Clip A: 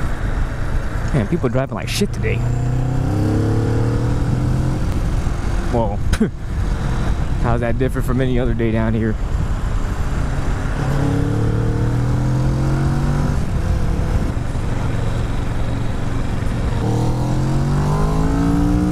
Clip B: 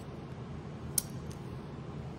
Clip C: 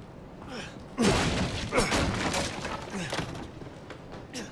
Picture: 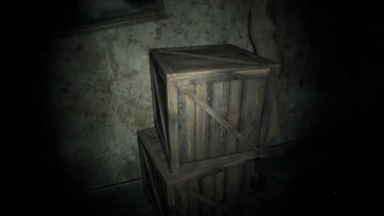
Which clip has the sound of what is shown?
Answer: C